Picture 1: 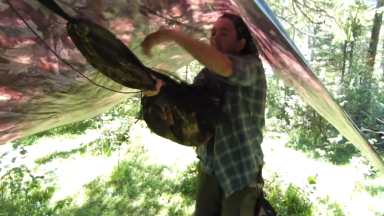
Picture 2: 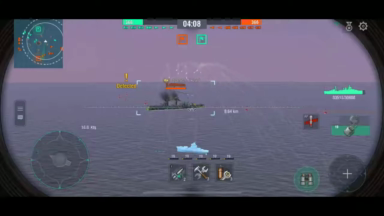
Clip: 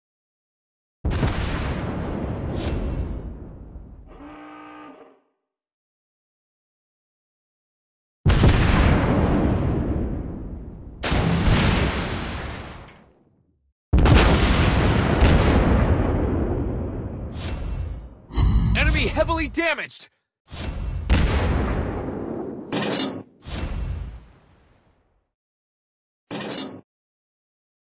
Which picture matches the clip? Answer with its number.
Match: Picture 2